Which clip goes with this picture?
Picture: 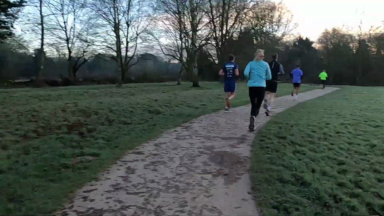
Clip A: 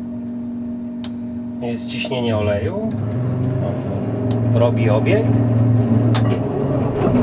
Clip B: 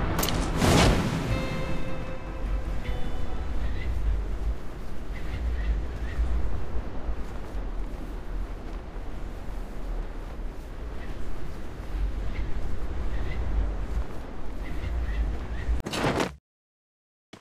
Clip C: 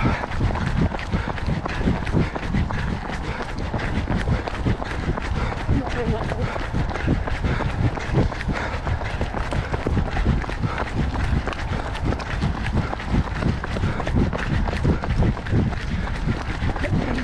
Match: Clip C